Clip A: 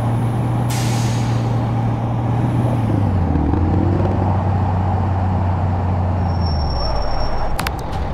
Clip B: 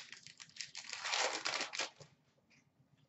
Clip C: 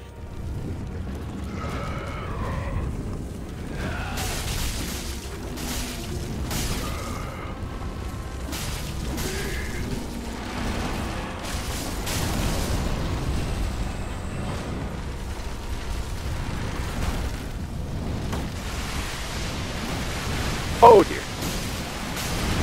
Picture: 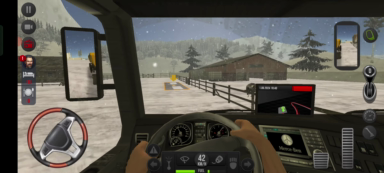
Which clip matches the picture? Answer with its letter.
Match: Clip A